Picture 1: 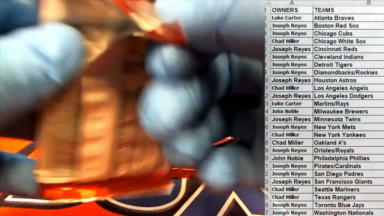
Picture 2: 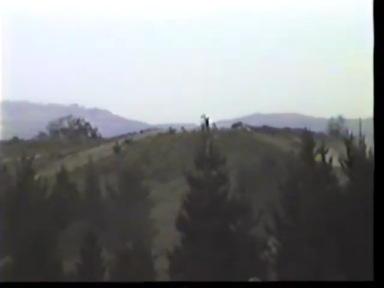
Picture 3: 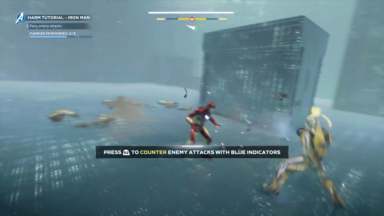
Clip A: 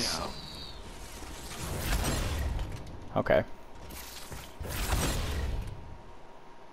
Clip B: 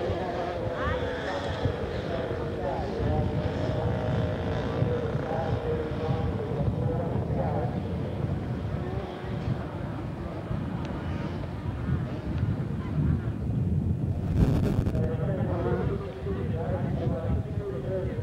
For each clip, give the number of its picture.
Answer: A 3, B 2